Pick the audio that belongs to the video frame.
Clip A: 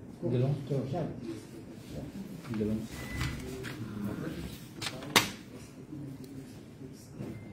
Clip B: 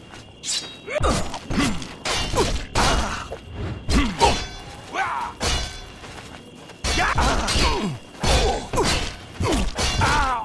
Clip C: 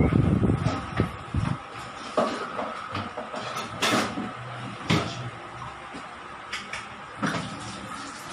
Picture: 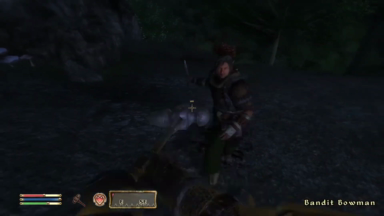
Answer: B